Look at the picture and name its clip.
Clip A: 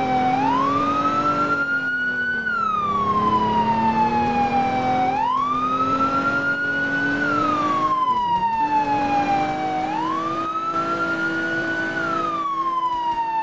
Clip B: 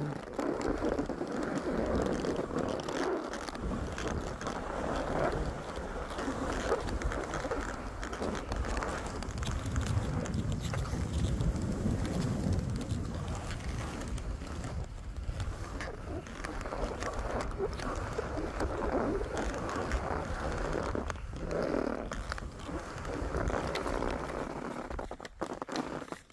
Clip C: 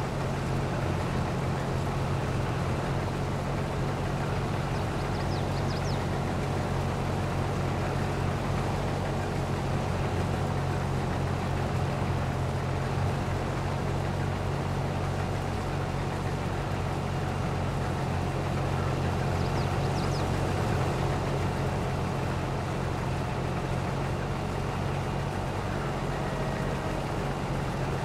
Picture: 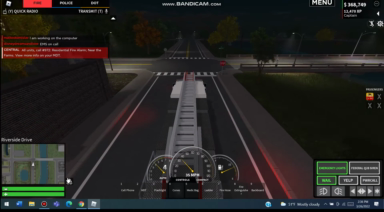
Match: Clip A